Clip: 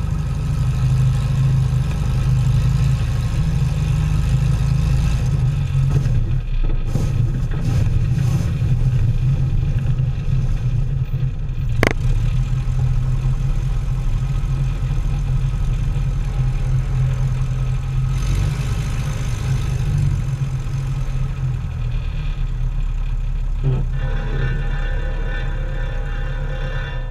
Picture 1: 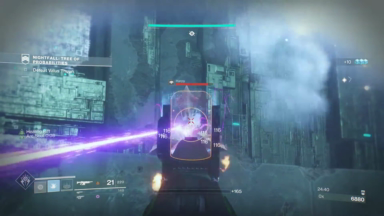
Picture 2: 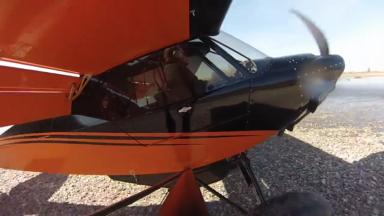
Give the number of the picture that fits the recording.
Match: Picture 2